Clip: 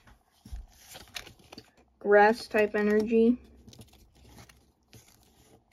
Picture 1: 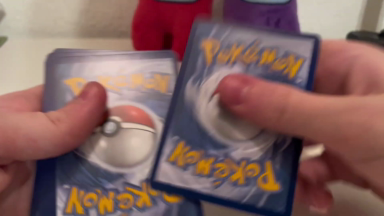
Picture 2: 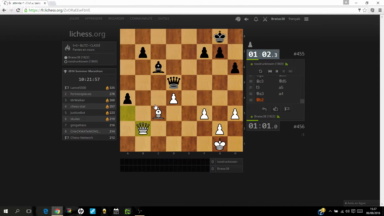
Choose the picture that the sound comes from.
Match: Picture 1